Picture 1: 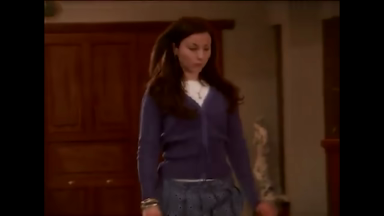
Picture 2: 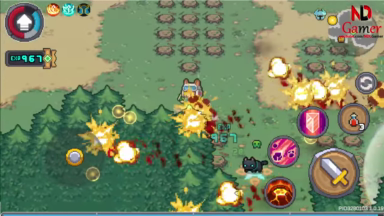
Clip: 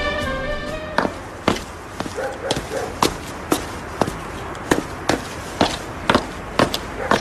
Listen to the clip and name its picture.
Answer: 1